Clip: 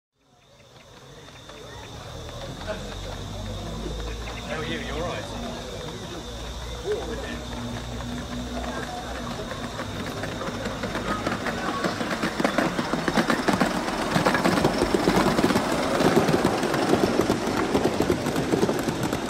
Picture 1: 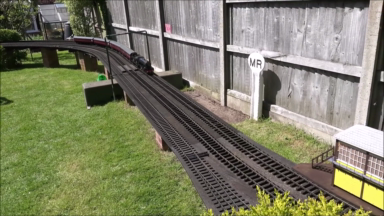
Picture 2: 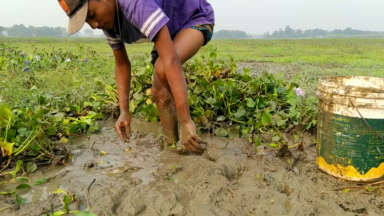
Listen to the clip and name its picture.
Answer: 1